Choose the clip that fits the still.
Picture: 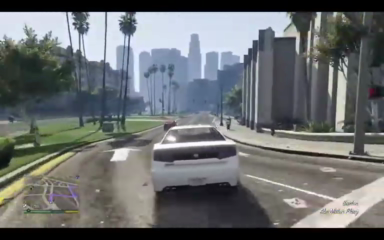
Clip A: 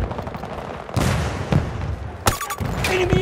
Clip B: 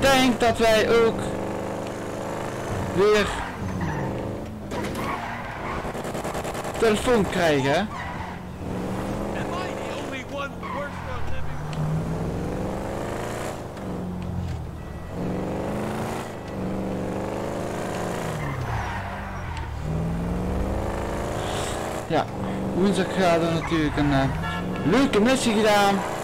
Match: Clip B